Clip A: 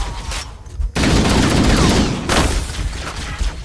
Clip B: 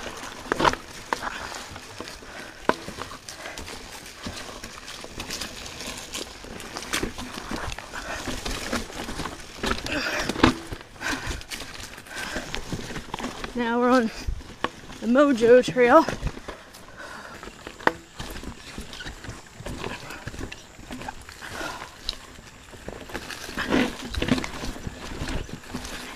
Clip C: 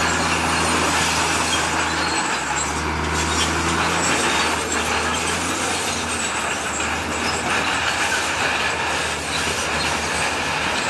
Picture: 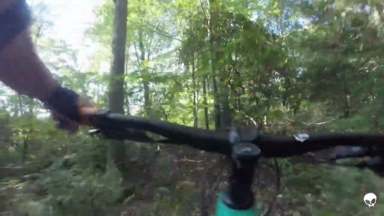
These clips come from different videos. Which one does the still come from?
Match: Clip B